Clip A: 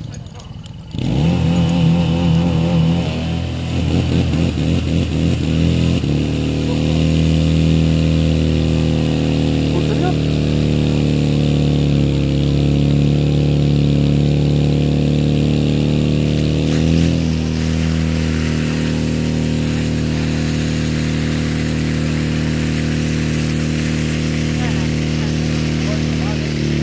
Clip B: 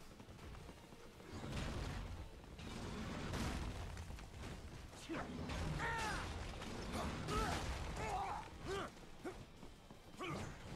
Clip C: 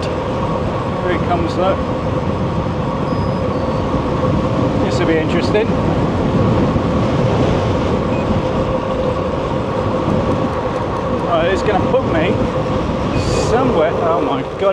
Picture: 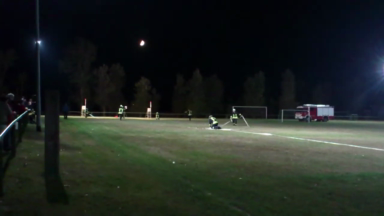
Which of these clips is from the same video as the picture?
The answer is A